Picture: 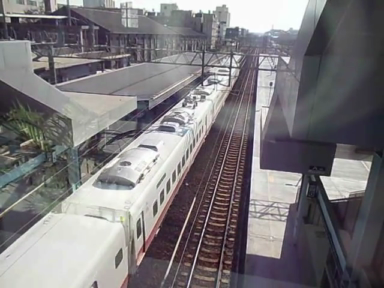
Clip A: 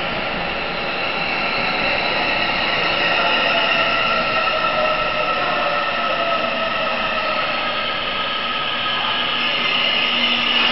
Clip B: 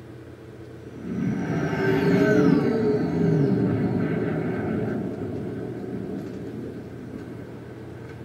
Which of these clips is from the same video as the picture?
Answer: A